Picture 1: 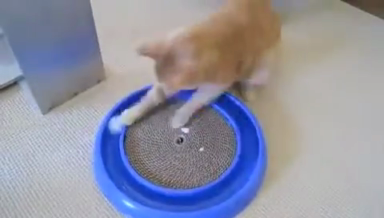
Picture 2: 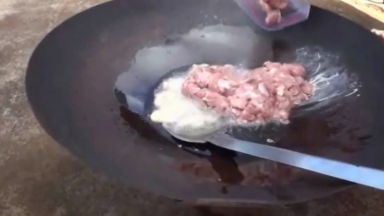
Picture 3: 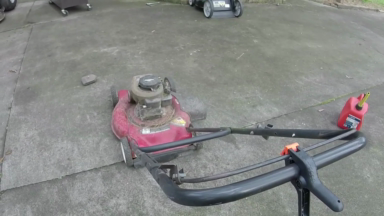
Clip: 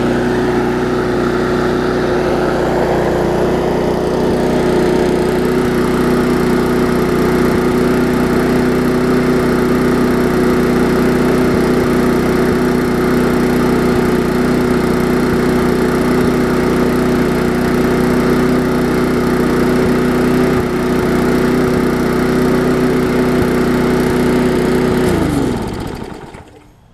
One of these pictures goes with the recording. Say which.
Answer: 3